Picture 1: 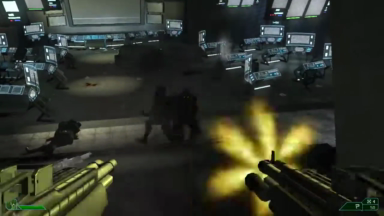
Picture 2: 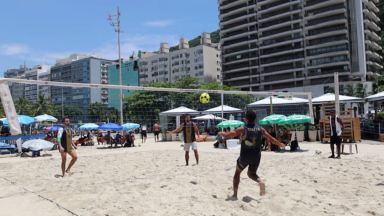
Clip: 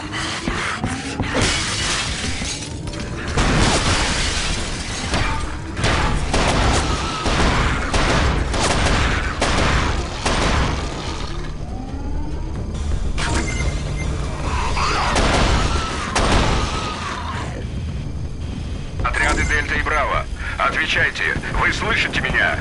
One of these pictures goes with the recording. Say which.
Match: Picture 1